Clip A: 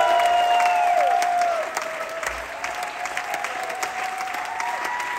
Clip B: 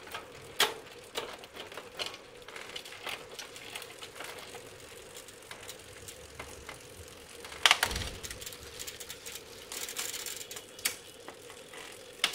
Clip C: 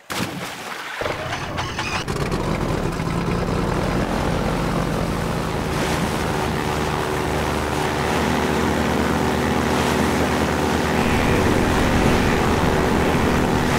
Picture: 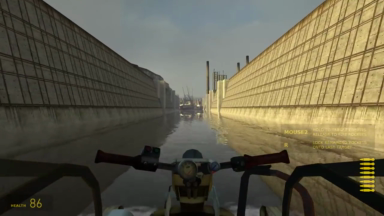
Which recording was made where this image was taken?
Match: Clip C